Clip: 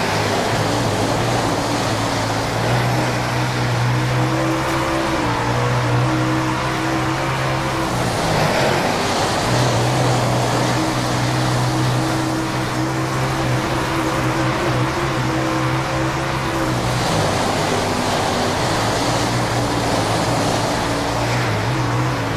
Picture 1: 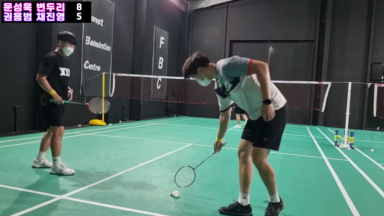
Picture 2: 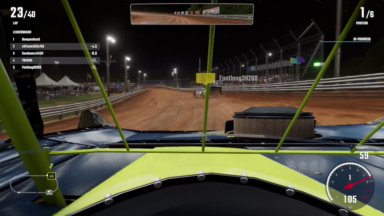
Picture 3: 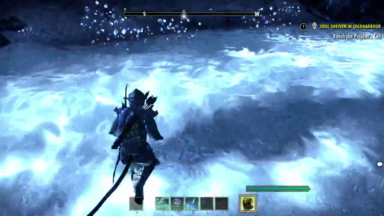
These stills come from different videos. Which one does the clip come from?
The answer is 2